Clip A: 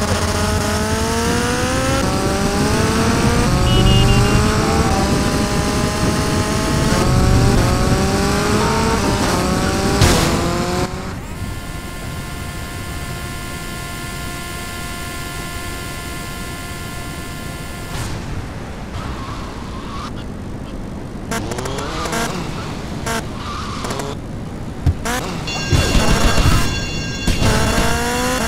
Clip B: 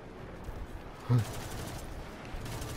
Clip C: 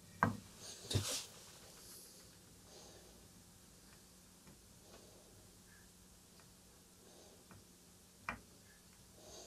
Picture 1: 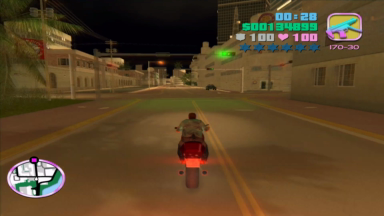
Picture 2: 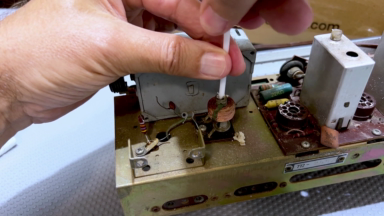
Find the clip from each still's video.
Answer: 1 A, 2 C